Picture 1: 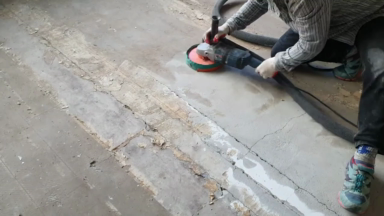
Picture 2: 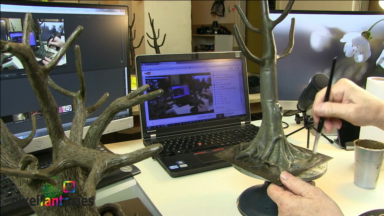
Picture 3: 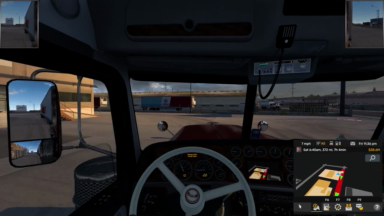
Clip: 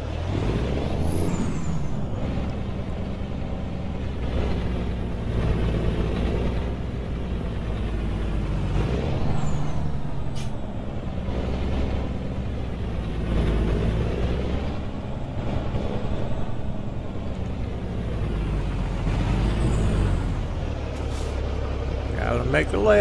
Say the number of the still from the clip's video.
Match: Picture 3